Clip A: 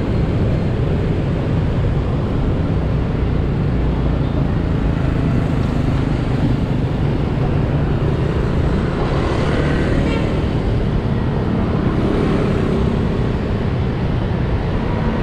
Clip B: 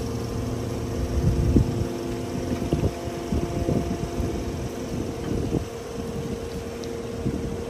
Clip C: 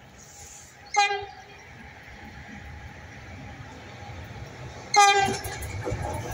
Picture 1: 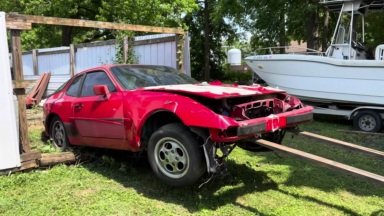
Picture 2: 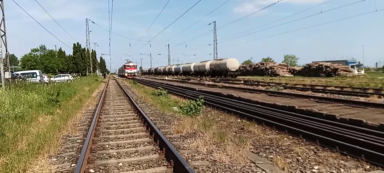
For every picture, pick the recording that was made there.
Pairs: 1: B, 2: C